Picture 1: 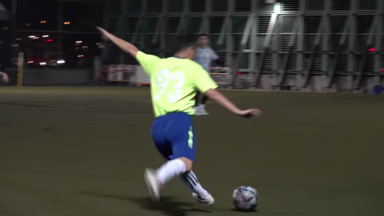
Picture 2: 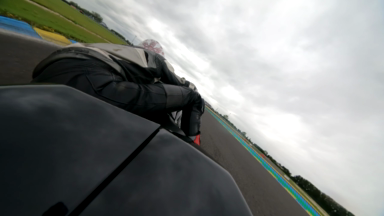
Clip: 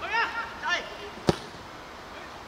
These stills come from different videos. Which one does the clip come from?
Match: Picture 1